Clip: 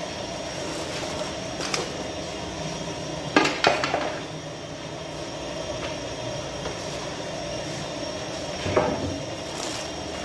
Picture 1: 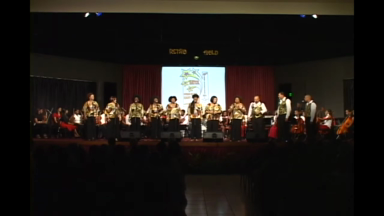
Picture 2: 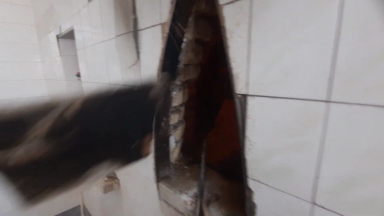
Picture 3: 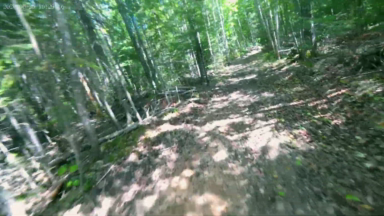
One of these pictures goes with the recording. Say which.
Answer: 2